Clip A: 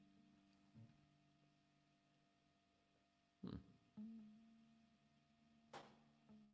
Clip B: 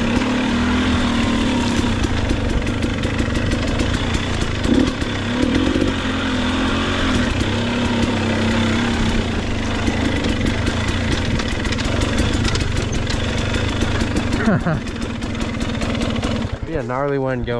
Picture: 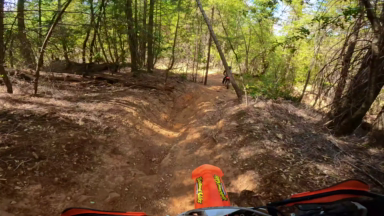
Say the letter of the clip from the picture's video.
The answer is B